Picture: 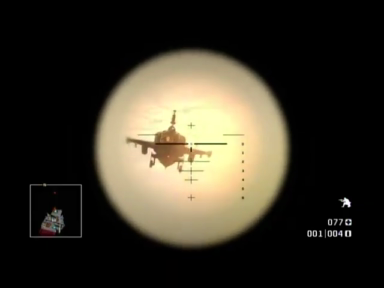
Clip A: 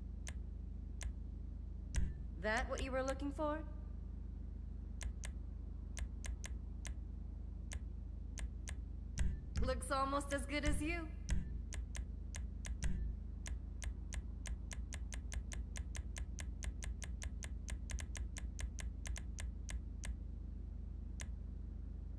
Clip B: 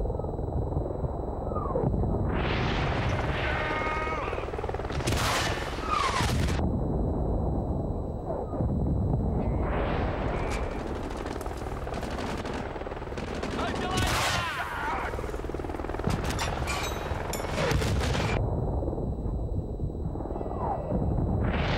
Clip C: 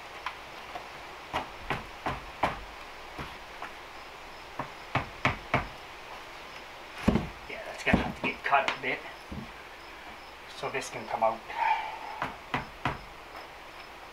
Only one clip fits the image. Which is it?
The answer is B